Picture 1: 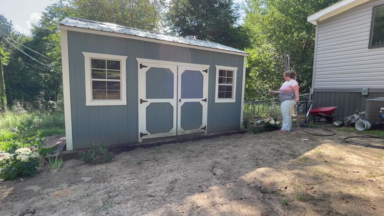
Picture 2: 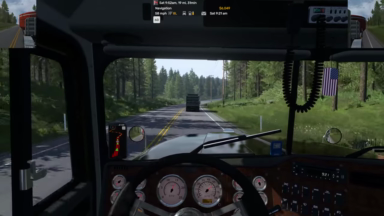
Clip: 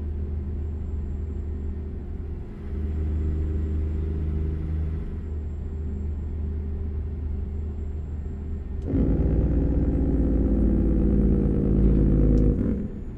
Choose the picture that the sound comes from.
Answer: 2